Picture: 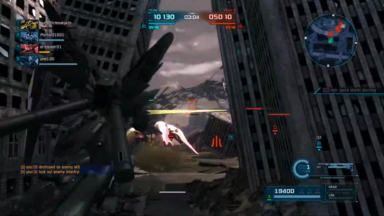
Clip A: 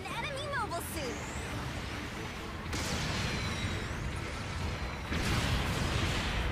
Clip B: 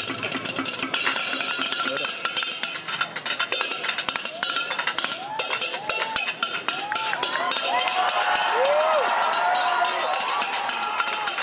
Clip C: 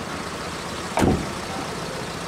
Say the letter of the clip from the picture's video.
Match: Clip A